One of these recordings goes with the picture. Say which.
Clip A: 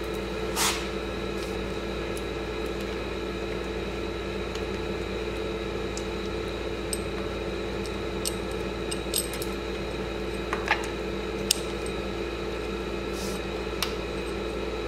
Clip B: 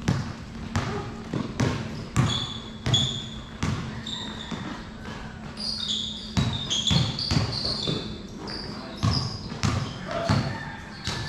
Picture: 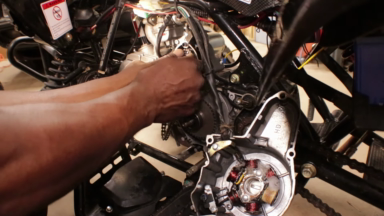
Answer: A